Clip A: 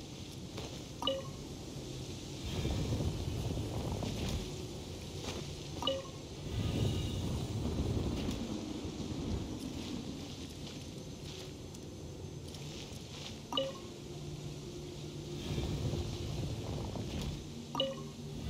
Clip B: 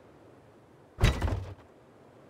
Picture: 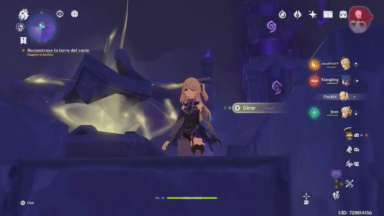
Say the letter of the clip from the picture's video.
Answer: A